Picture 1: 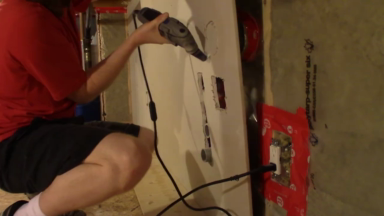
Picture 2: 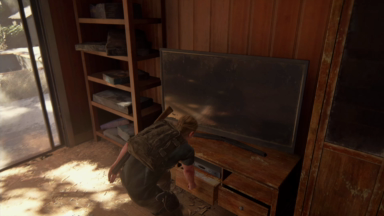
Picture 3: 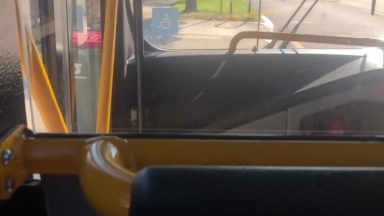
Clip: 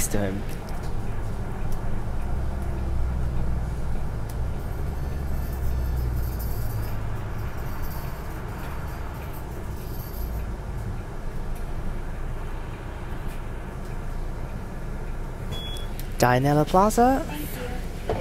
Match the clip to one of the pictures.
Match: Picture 3